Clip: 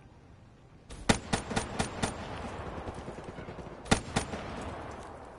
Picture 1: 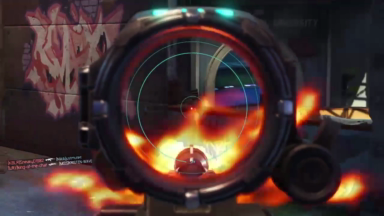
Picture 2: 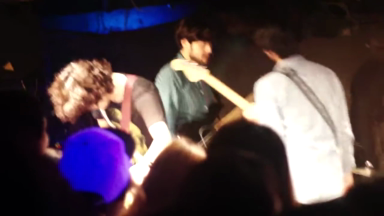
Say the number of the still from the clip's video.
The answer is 1